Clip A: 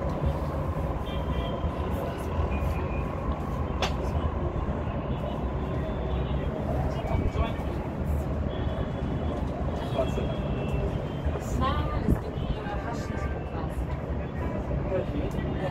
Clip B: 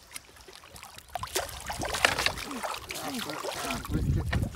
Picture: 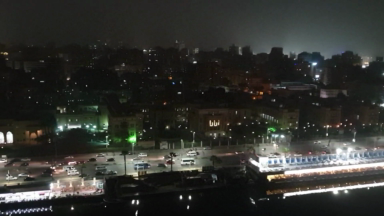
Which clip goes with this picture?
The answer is A